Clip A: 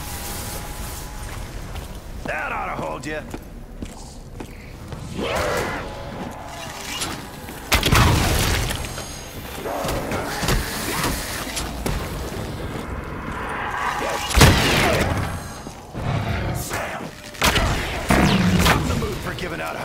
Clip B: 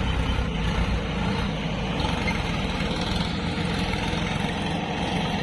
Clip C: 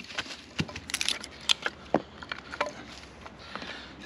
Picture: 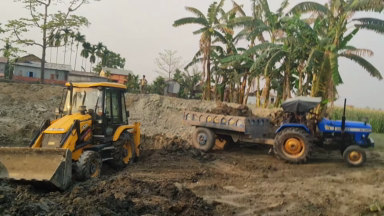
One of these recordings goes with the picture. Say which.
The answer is B